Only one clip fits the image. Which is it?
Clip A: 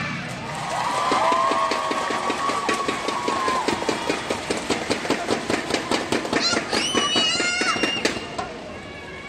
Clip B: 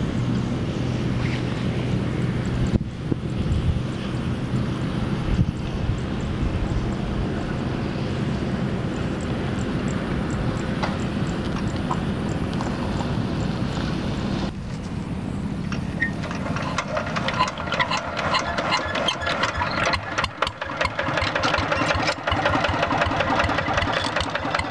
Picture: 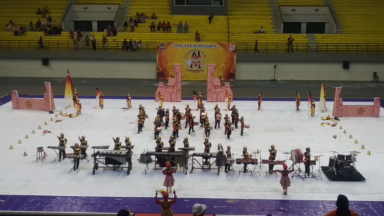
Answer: A